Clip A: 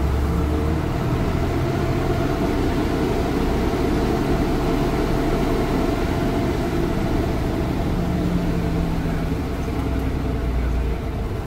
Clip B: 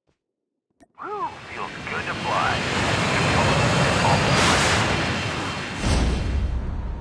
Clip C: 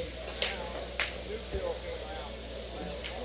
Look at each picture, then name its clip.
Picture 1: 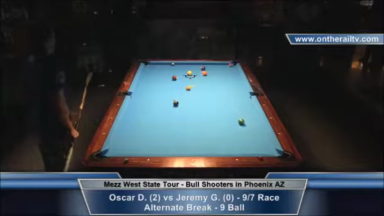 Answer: C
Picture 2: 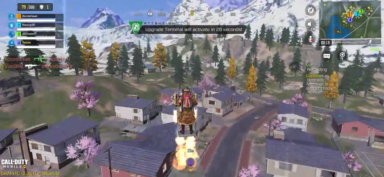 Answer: B